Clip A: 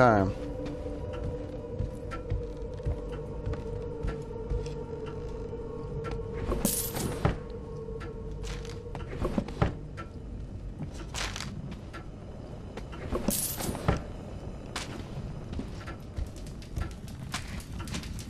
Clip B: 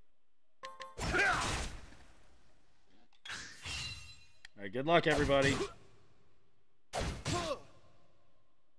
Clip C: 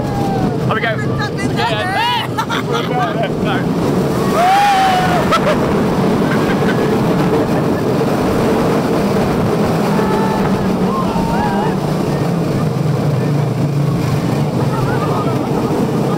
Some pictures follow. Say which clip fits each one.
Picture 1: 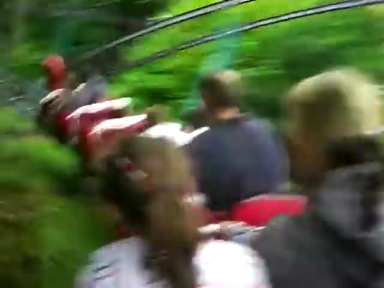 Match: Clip C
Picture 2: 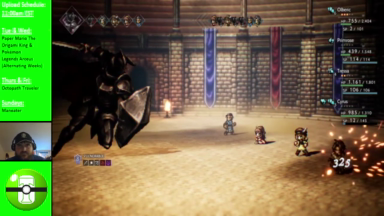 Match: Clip B